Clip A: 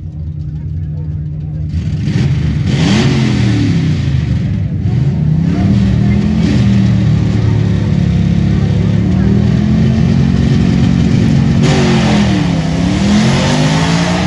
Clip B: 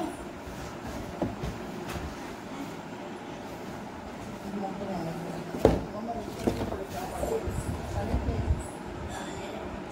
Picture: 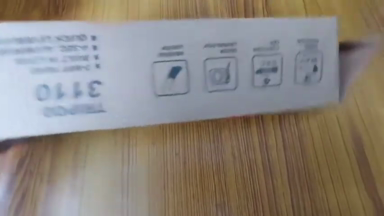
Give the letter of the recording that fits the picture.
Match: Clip B